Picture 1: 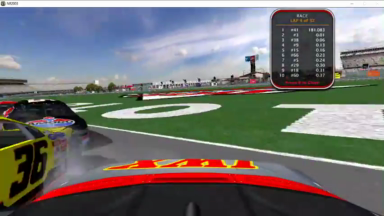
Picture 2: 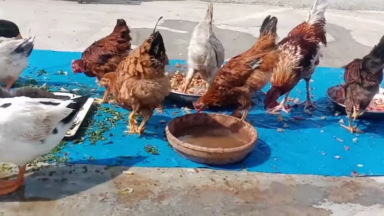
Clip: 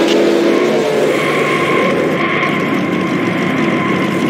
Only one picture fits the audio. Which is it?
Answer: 1